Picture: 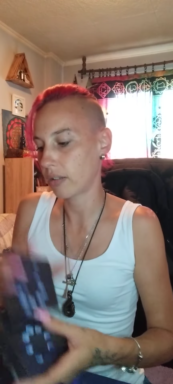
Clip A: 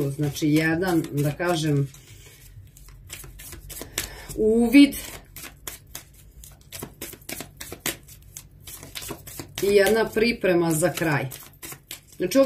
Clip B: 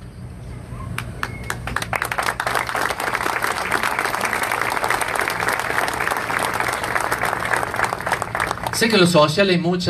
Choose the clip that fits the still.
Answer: A